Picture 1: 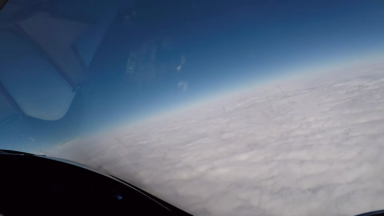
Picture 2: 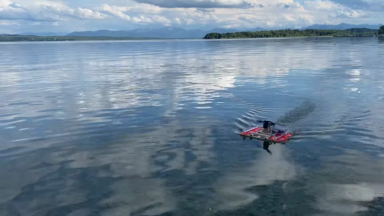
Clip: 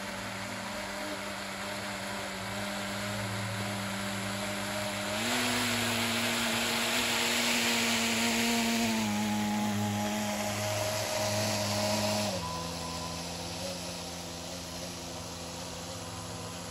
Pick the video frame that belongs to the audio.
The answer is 2